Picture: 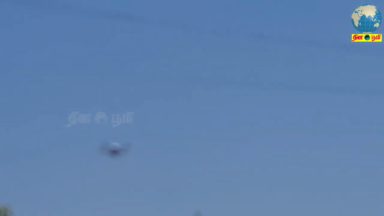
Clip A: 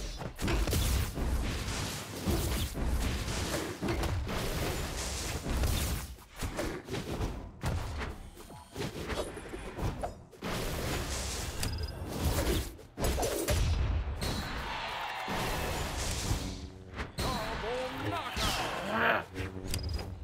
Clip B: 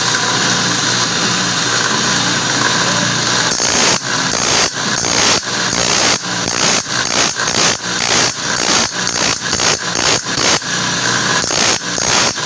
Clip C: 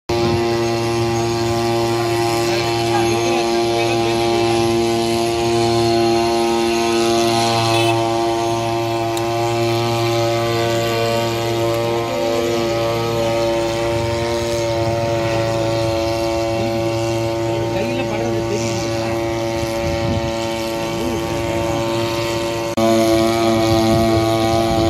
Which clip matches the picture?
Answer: C